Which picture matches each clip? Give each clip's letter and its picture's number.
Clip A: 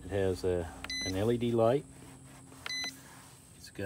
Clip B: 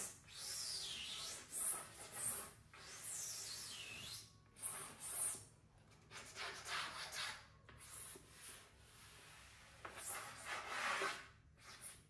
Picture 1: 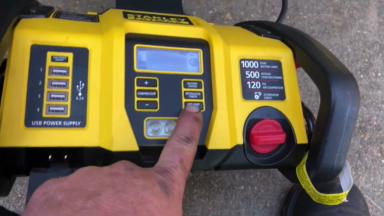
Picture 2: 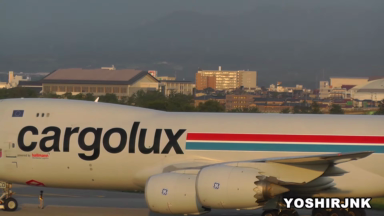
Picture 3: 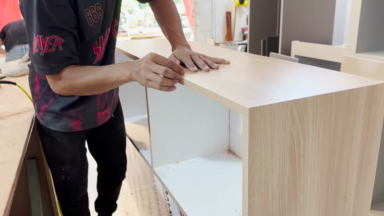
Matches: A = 1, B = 3